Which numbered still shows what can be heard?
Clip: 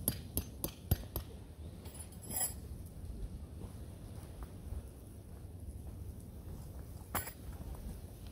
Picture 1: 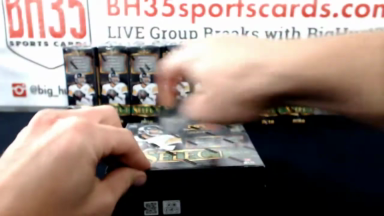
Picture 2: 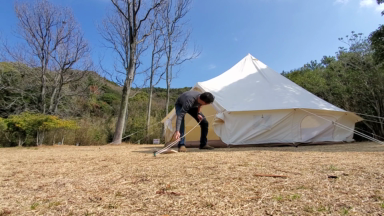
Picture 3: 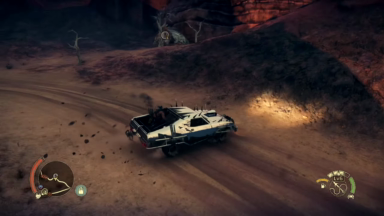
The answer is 2